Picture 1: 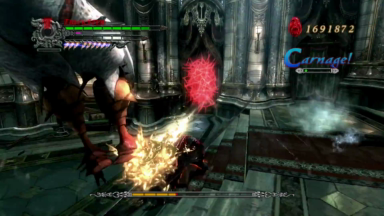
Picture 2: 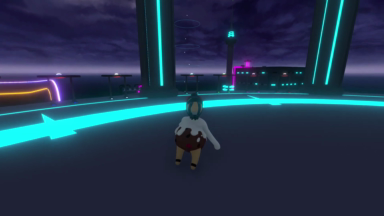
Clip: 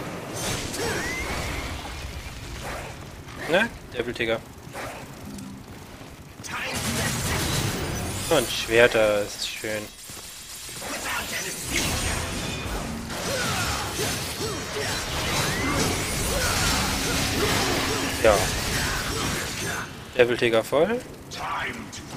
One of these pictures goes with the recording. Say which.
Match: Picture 1